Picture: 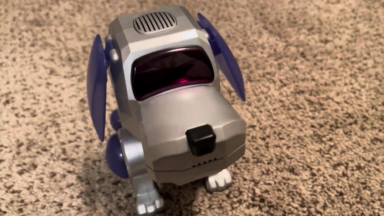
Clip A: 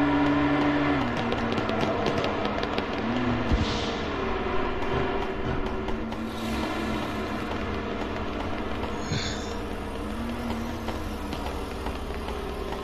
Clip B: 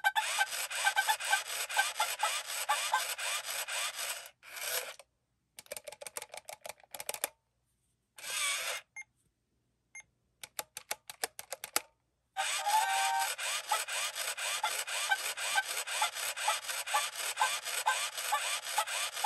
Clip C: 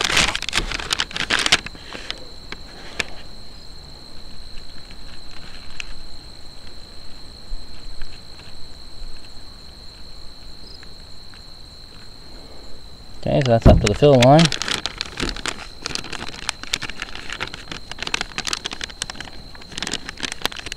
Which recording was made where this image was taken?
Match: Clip B